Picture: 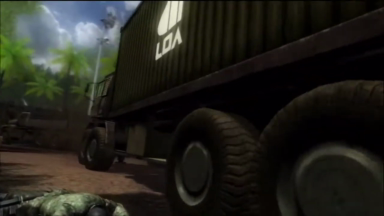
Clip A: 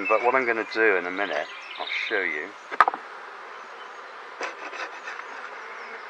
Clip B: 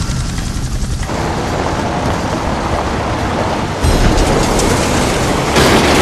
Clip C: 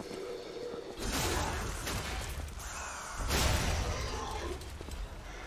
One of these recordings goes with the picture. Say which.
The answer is B